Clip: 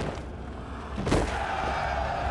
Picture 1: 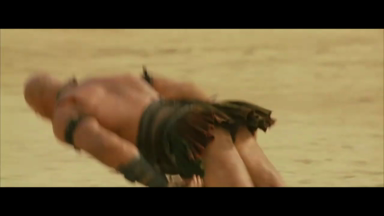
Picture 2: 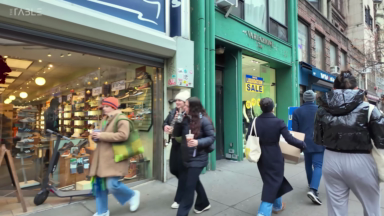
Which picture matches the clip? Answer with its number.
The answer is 1